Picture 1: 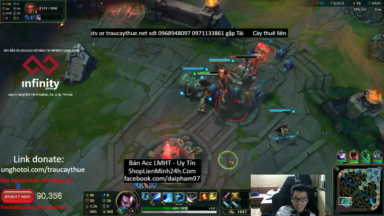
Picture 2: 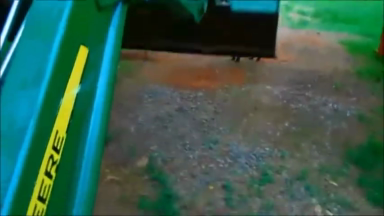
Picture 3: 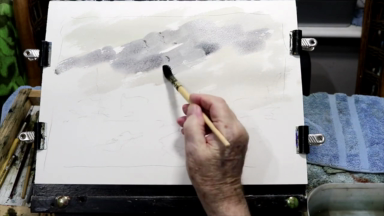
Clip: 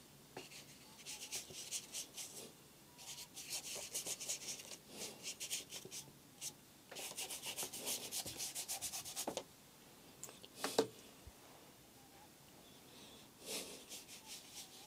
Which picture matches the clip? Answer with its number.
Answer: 3